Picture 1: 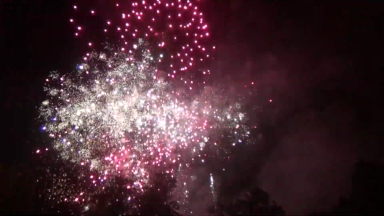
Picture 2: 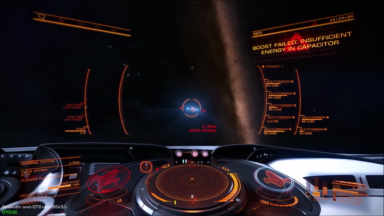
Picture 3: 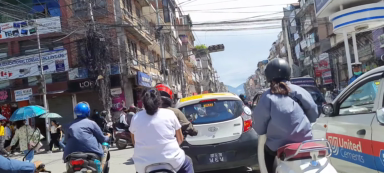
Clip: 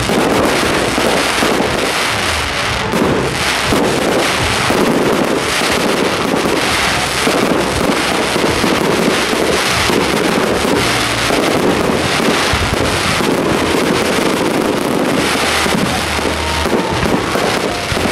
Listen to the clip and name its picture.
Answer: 1